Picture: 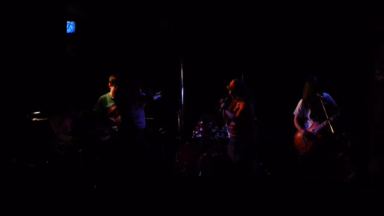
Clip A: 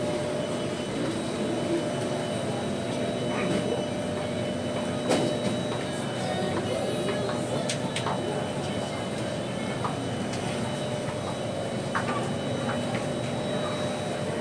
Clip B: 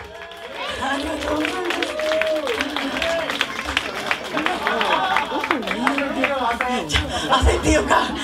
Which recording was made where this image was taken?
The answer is B